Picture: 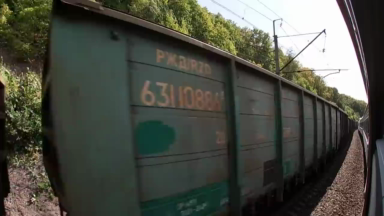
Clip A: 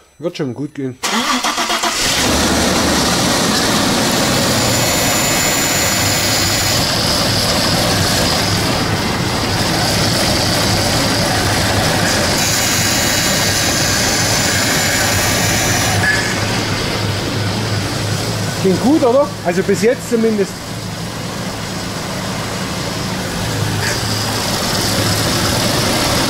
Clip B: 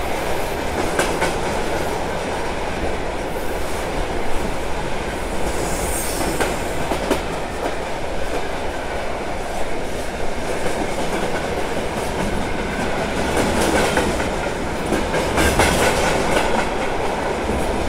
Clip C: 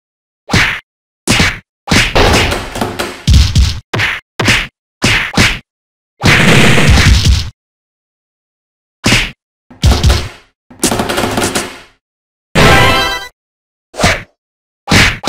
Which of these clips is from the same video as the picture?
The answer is B